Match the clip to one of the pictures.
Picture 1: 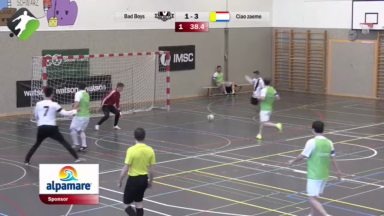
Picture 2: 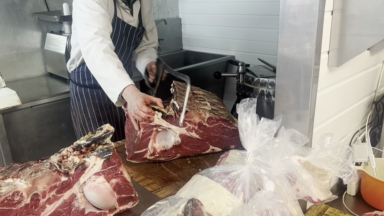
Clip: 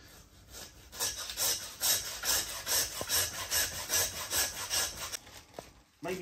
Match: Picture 2